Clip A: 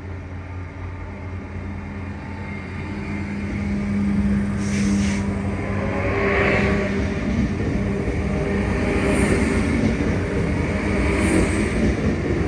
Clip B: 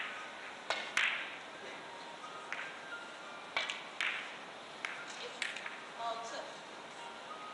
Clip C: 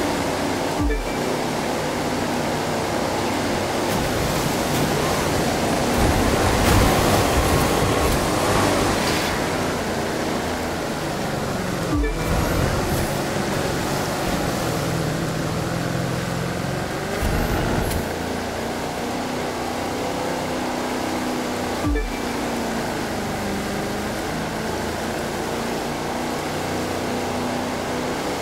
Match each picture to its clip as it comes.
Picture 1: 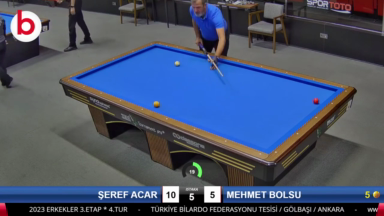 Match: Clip B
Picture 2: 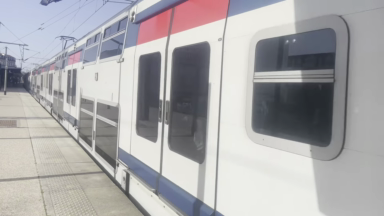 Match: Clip A